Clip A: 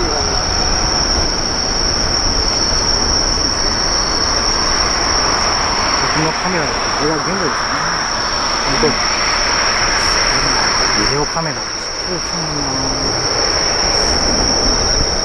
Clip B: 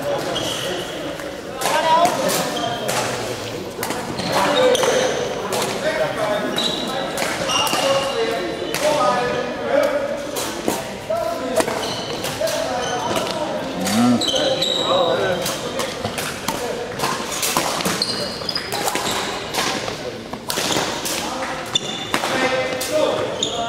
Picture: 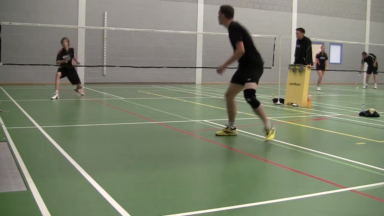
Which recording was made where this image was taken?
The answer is B